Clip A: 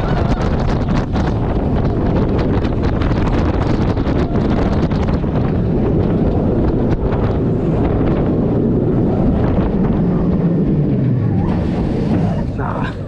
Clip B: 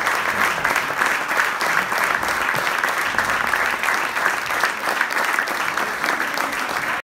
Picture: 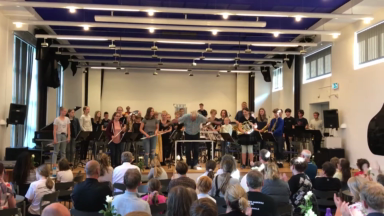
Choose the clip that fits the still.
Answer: B